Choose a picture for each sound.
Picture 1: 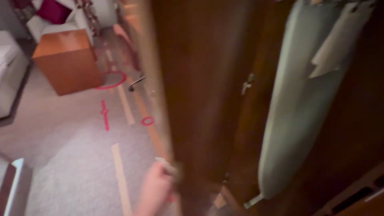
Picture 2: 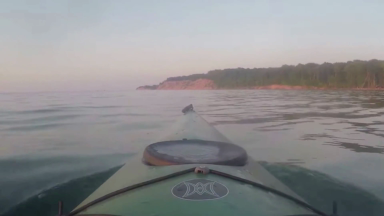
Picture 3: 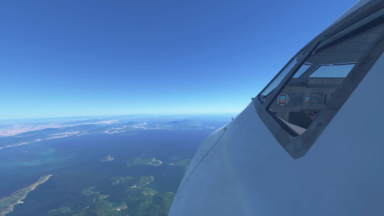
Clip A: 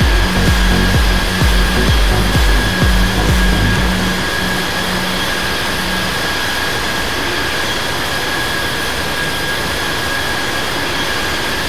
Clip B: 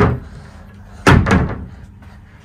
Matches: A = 3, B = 1